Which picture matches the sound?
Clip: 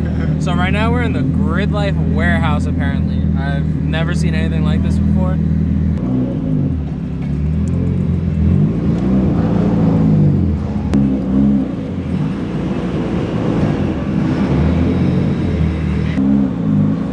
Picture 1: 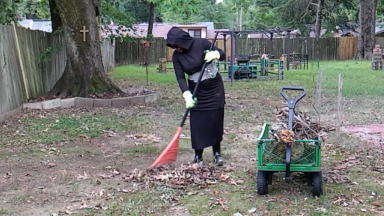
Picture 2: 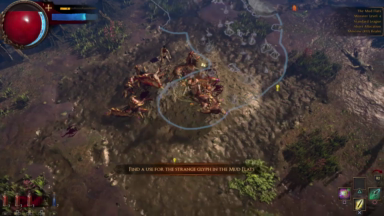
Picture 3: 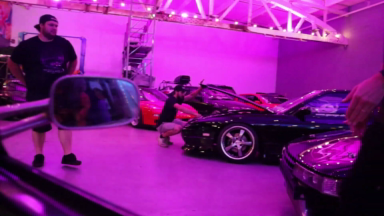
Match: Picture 3